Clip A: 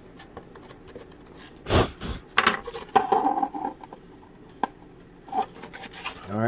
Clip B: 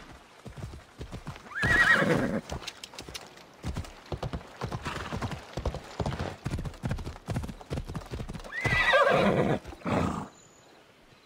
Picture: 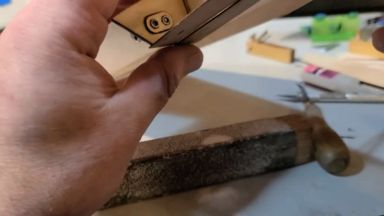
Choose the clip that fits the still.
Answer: A